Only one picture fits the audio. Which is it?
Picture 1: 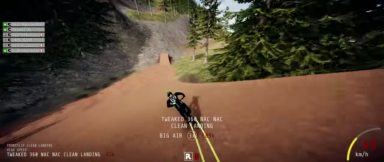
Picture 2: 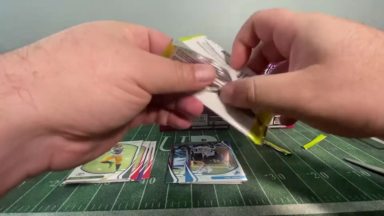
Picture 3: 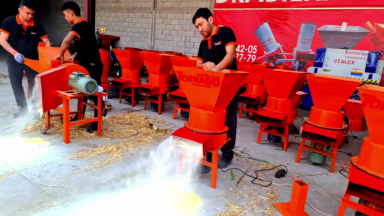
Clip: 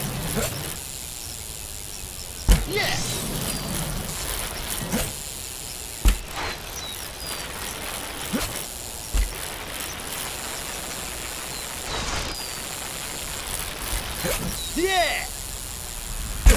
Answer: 1